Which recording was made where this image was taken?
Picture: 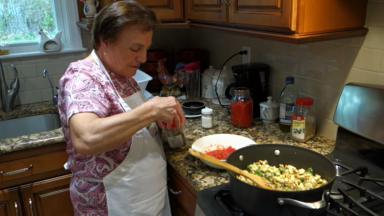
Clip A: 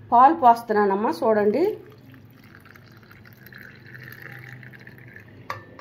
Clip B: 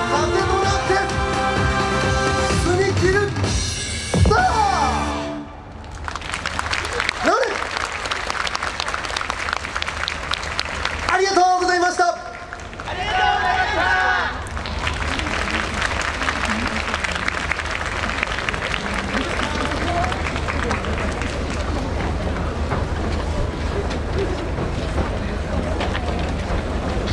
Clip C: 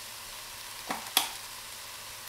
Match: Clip C